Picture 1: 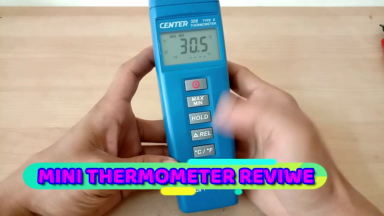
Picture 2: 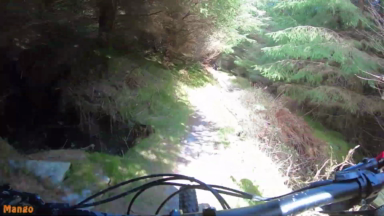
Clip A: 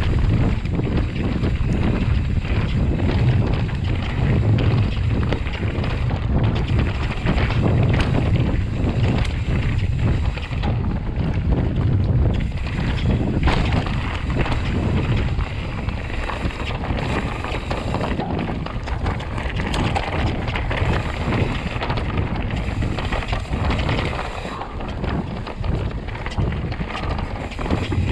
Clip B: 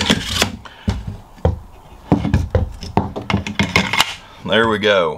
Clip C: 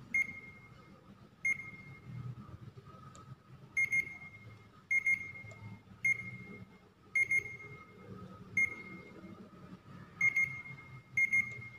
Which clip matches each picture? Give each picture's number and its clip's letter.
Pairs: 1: C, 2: A